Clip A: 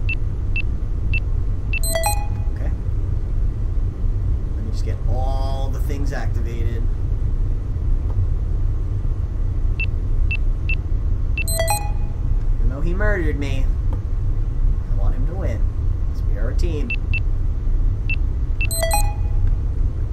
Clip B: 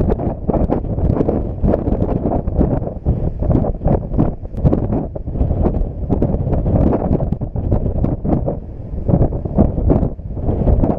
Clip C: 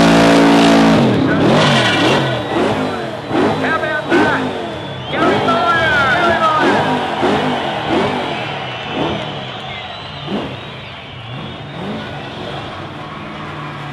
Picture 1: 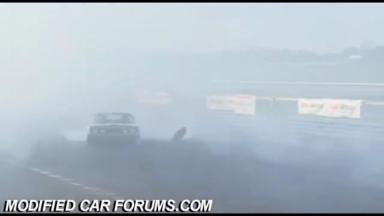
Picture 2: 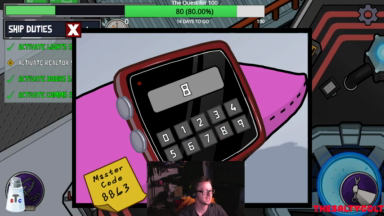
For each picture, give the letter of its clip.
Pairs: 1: C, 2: A